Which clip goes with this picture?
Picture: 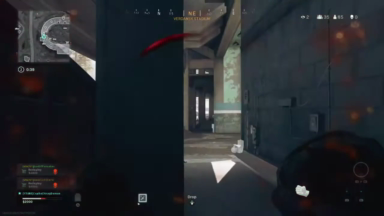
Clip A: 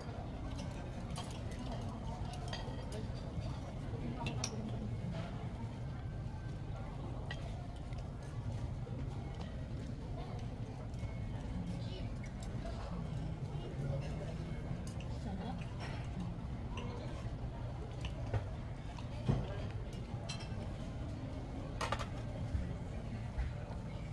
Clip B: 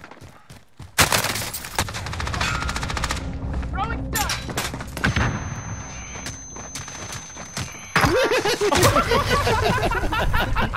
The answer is B